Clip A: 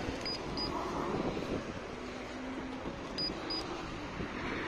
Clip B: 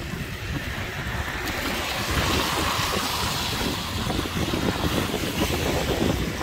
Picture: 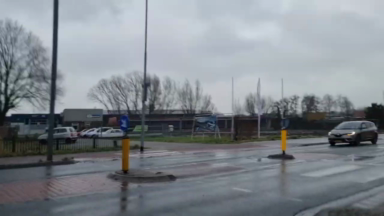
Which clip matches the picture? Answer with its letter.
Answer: B